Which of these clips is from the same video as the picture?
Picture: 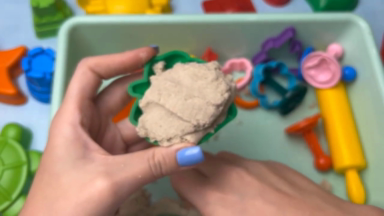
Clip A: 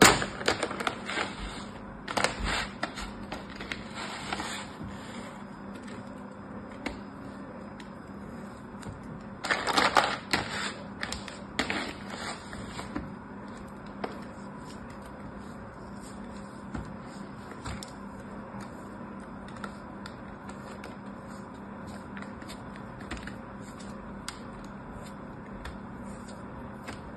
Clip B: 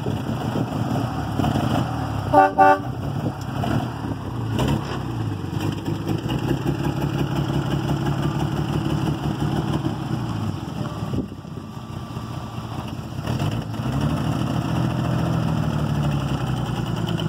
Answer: A